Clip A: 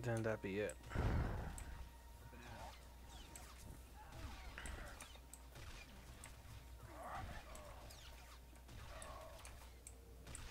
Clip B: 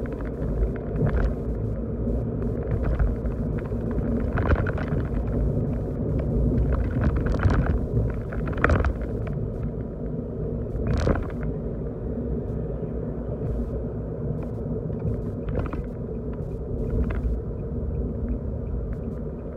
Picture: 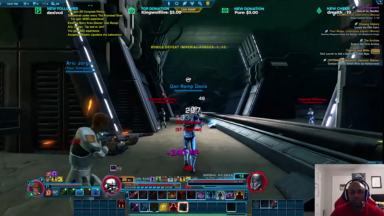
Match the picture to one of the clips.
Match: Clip A